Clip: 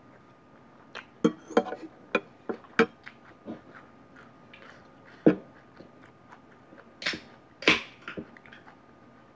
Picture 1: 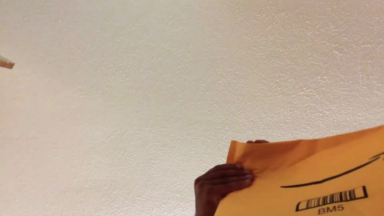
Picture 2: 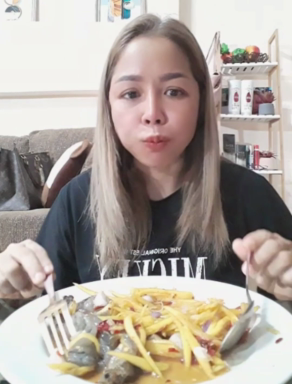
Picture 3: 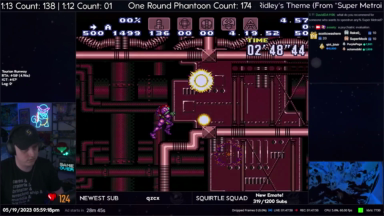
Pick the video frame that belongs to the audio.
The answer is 2